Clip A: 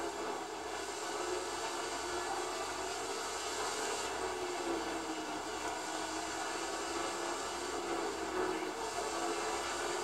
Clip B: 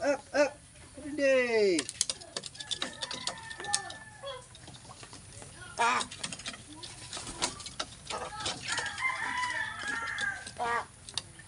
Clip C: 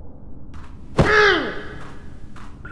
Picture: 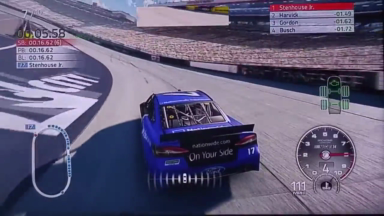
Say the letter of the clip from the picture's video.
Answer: A